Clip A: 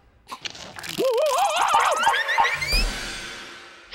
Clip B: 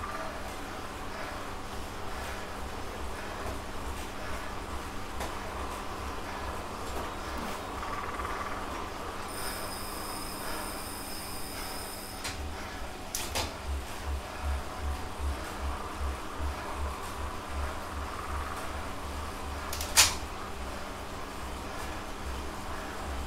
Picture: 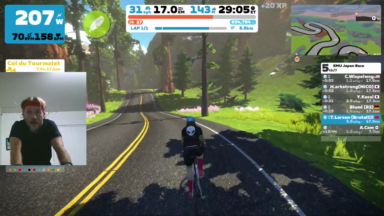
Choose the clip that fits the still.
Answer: B